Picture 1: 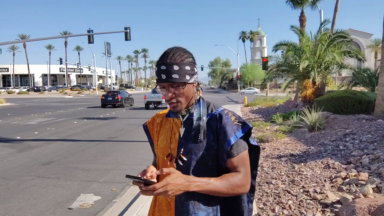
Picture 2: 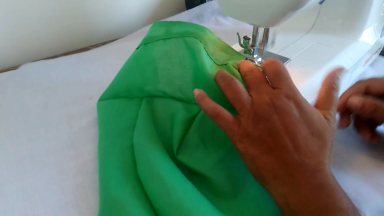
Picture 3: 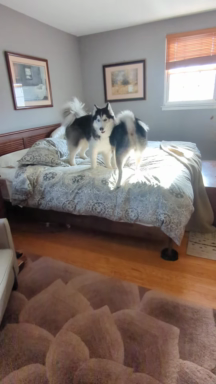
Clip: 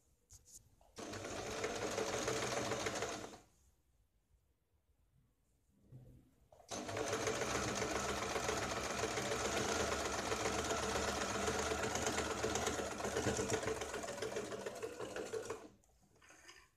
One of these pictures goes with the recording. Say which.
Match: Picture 2